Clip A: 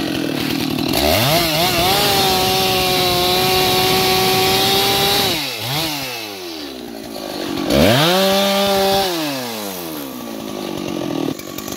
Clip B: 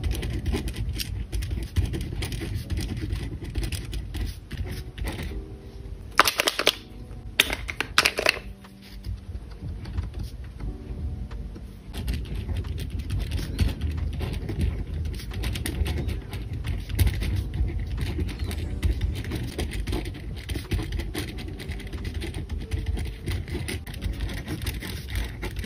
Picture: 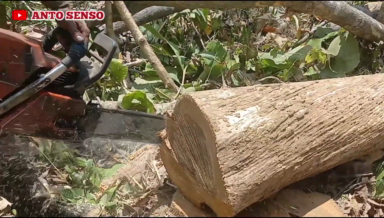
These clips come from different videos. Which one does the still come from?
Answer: A